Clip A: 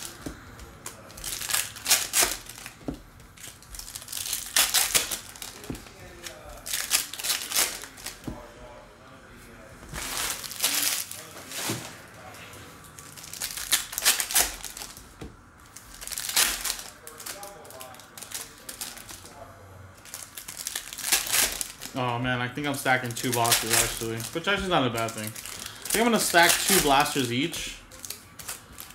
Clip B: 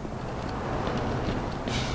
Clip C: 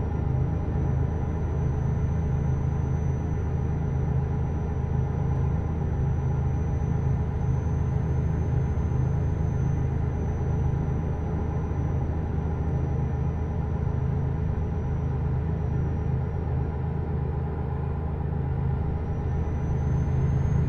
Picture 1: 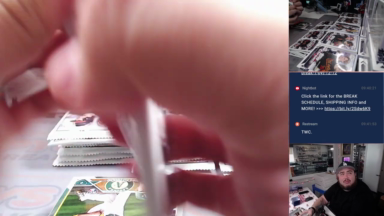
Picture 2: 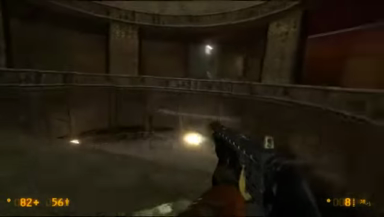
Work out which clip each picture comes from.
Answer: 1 A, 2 B